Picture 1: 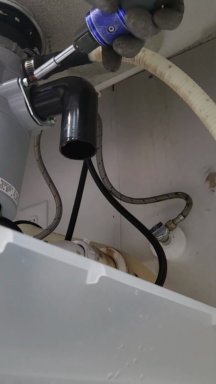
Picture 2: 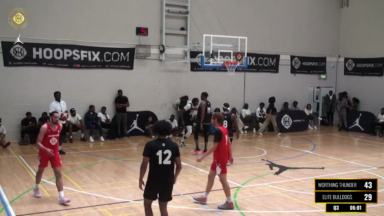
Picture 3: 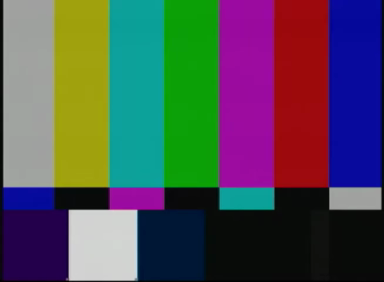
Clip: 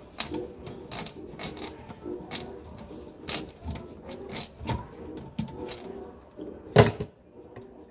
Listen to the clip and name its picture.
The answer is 1